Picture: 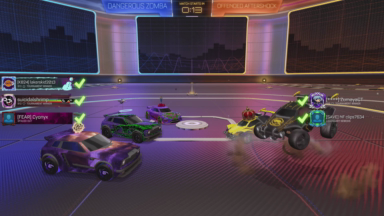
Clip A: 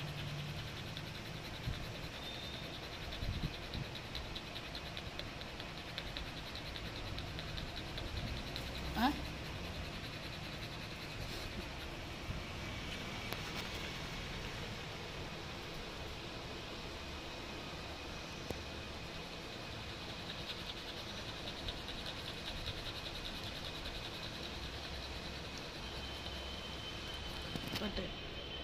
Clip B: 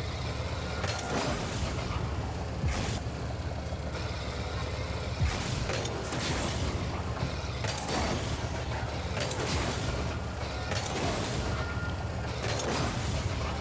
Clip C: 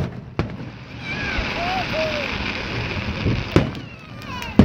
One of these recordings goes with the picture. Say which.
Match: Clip B